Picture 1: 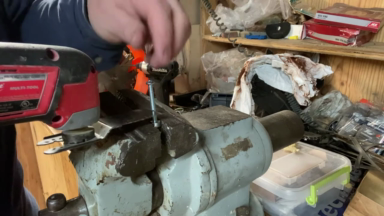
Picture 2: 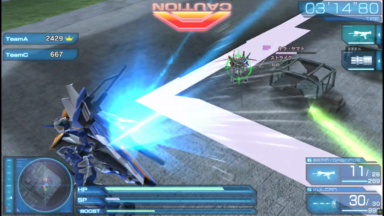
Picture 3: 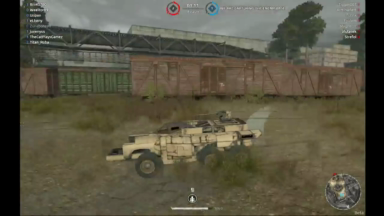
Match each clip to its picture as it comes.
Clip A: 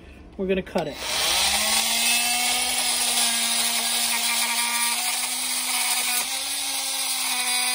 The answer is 1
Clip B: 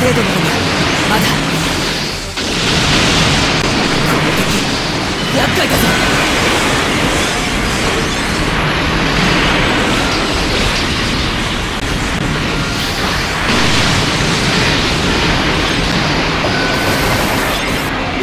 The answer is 2